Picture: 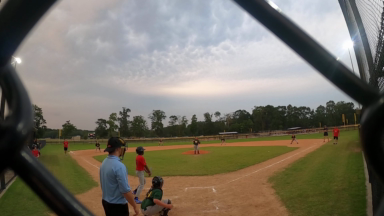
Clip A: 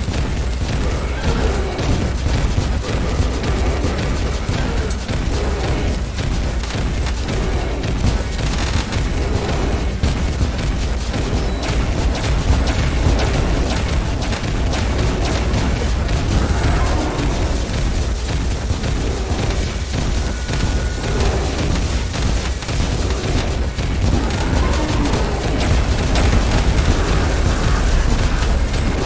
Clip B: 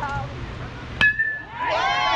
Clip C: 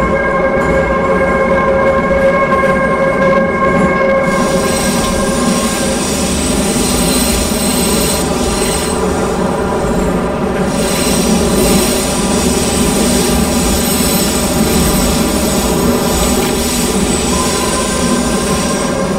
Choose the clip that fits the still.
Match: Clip B